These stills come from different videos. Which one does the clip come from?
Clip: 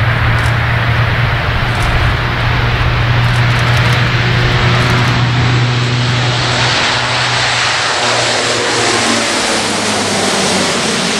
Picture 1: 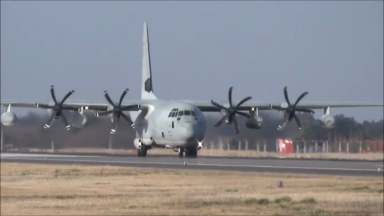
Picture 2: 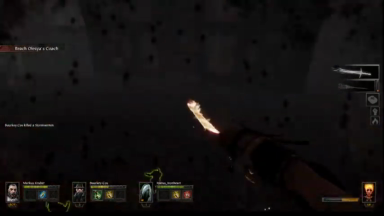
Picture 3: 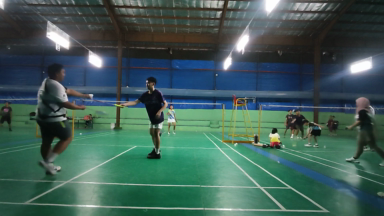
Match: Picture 1